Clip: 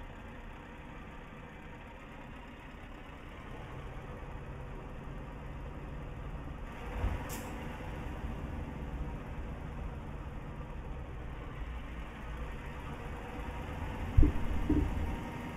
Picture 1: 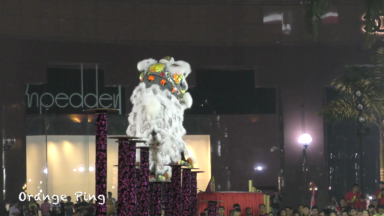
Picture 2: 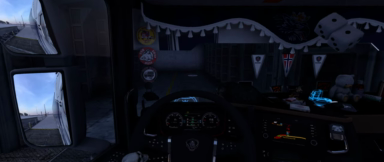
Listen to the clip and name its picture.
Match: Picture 2